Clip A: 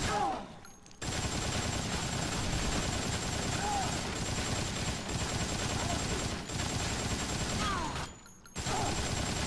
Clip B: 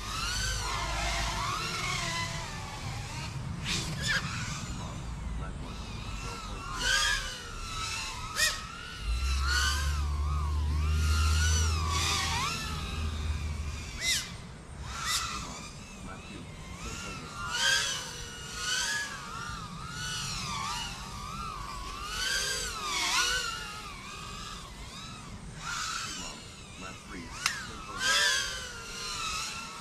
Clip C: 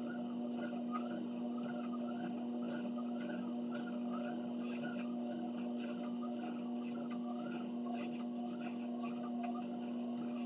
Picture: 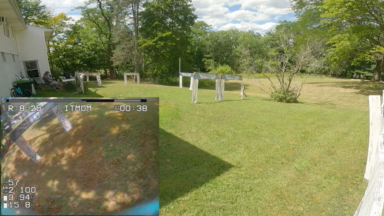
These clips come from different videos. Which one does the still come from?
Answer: B